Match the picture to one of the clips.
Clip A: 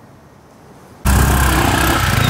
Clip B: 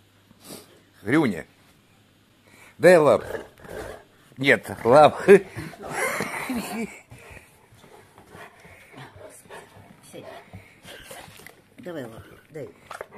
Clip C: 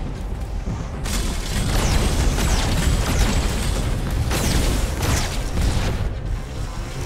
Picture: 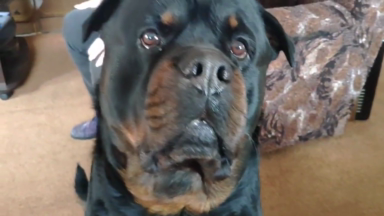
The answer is B